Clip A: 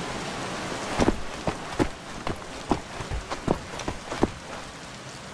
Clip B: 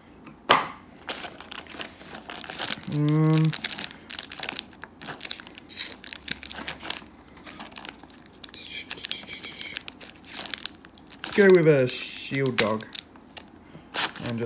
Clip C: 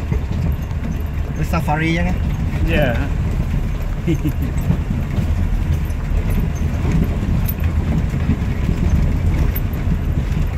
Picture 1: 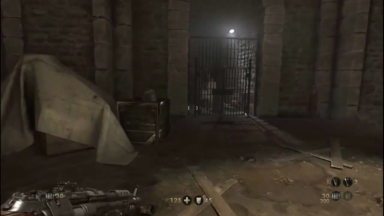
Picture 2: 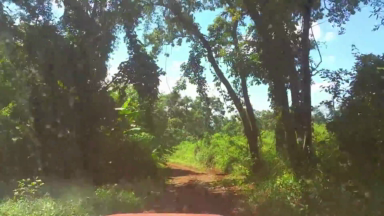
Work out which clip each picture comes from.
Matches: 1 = A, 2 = C